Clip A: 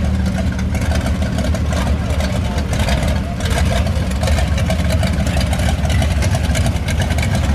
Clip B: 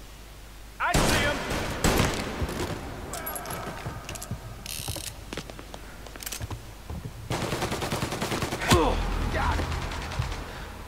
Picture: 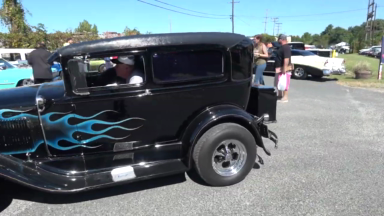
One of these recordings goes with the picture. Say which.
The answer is A